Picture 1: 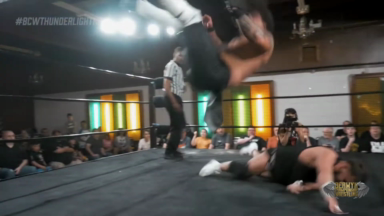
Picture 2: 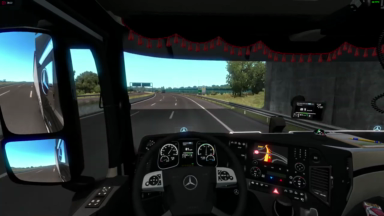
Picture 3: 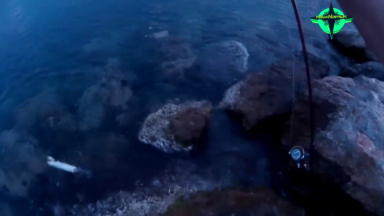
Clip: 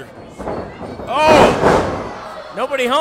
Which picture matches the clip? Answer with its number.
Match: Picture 1